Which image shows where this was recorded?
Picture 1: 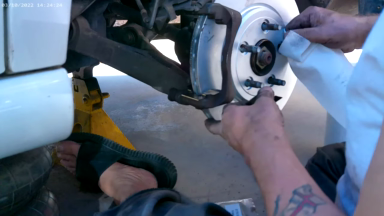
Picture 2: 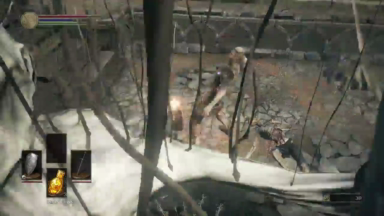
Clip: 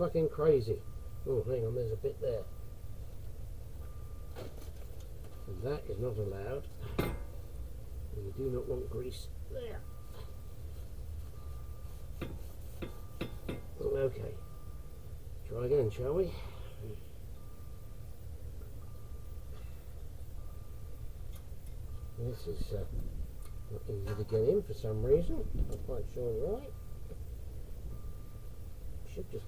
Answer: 1